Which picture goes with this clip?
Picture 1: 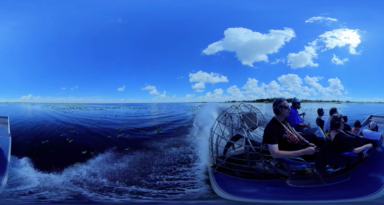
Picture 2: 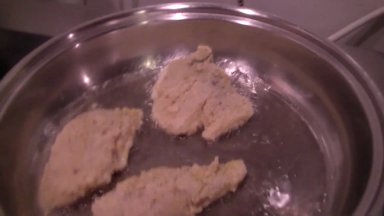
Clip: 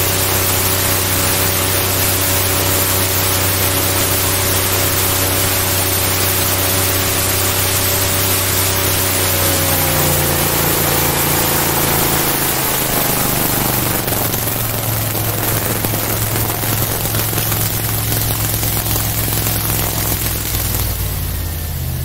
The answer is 1